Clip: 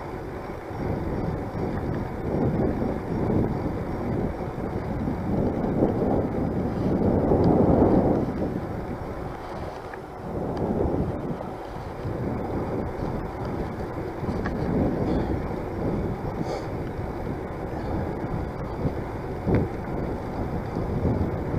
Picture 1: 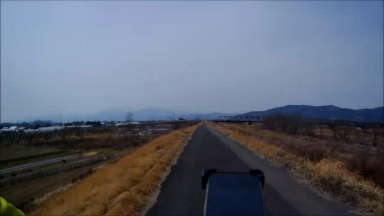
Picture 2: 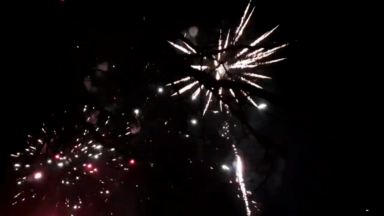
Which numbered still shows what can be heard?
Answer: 1